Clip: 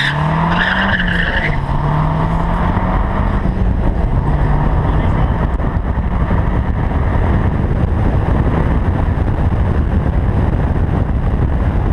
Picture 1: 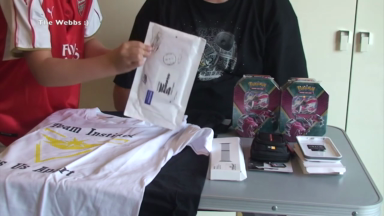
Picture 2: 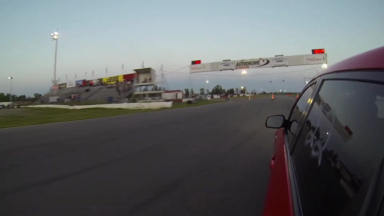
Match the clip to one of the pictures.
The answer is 2